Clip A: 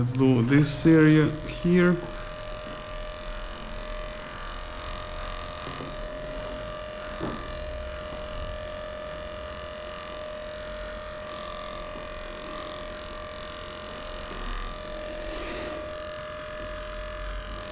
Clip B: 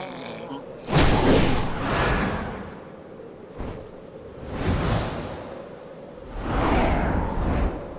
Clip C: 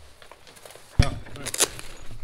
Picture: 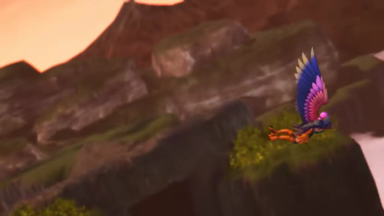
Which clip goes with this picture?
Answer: B